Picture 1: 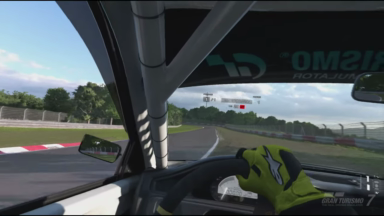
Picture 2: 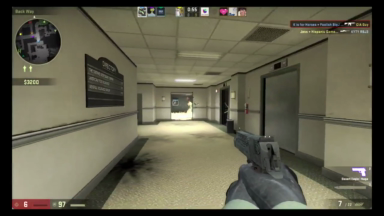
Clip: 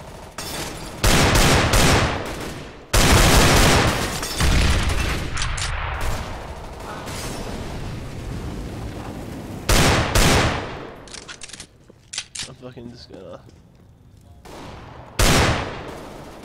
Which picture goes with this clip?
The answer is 2